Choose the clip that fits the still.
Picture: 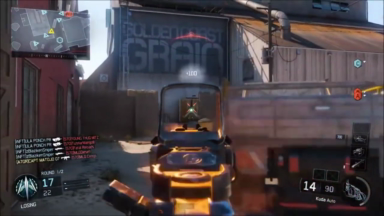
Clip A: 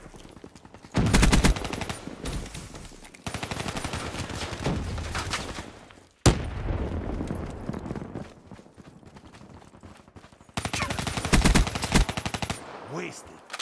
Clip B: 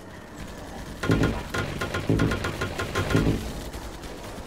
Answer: A